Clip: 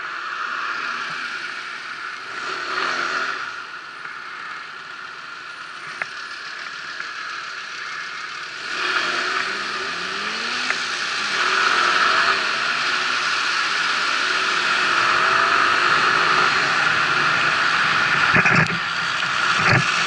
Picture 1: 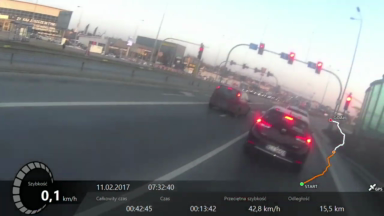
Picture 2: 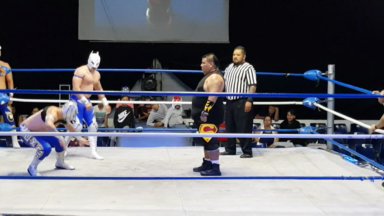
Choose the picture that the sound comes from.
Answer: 1